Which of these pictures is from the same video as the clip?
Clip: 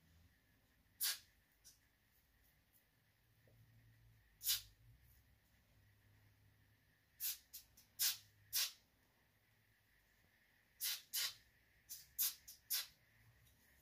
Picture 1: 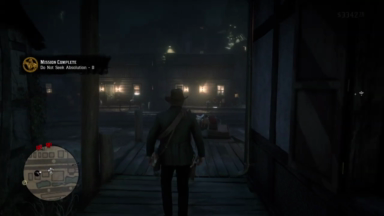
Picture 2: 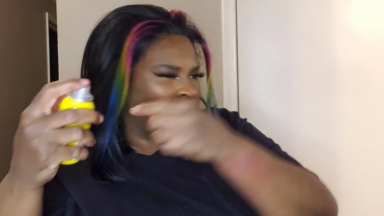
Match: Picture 2